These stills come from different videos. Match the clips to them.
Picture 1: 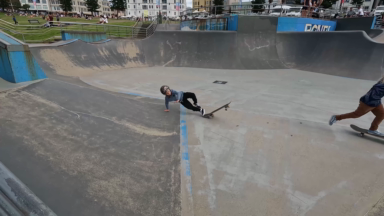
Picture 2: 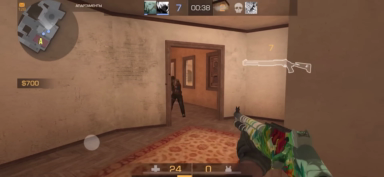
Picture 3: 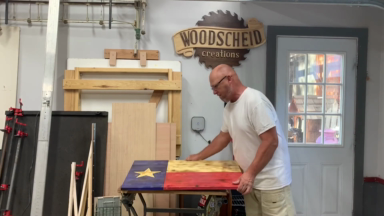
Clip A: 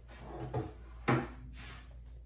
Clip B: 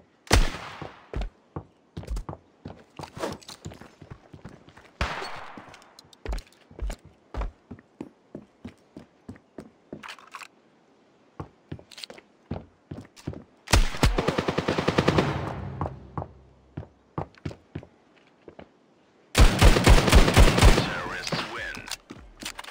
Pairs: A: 3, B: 2